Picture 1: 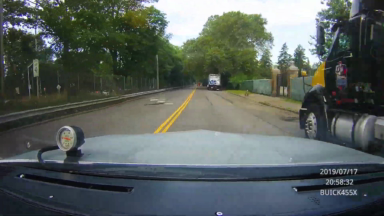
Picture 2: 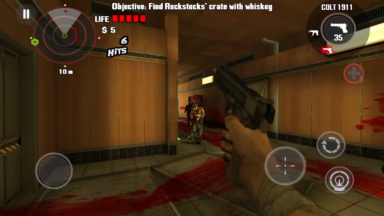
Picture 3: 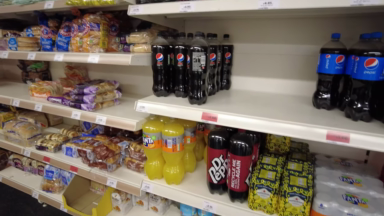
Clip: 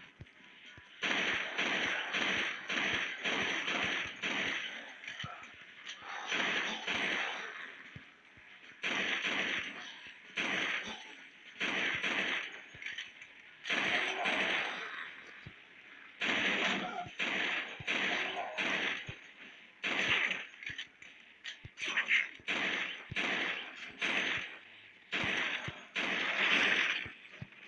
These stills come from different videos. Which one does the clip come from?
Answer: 2